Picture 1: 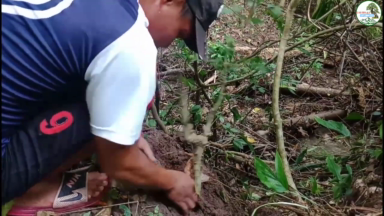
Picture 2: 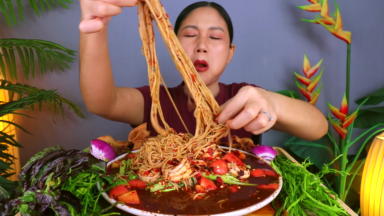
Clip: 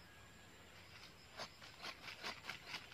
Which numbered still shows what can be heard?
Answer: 1